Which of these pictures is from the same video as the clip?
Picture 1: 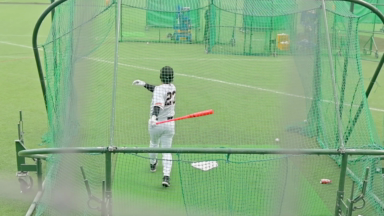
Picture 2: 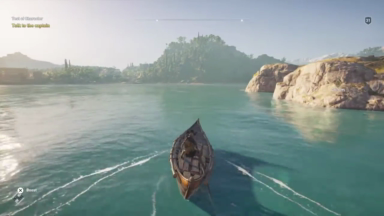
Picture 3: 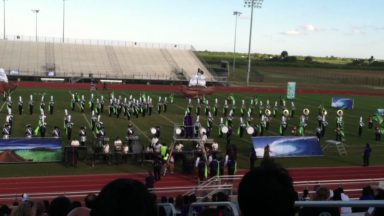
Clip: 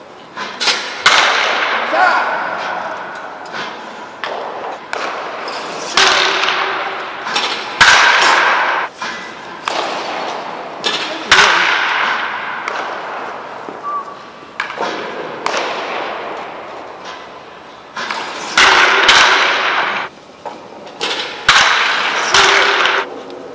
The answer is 1